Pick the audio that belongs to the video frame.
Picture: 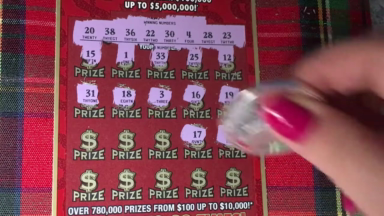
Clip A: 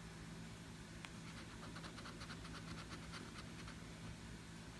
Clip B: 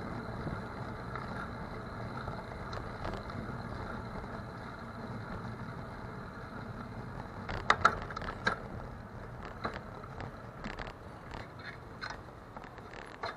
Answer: A